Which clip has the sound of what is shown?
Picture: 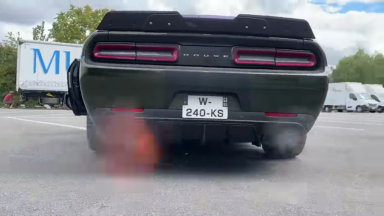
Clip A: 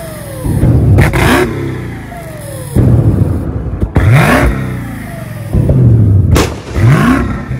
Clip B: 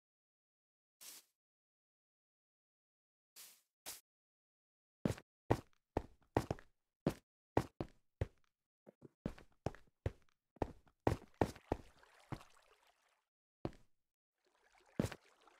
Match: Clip A